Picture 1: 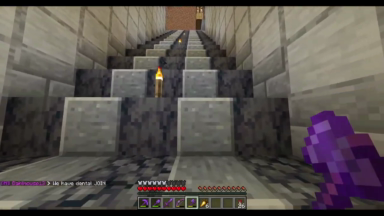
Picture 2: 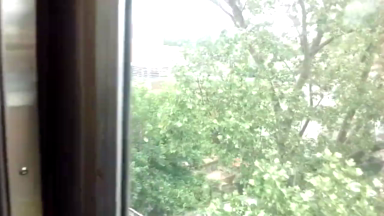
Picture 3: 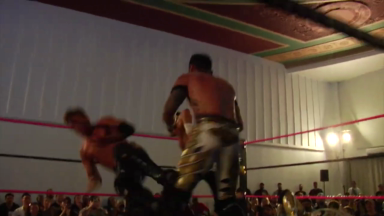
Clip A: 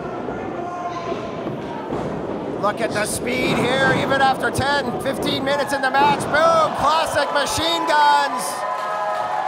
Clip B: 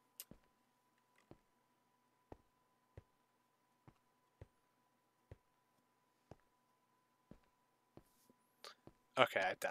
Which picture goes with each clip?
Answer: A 3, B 1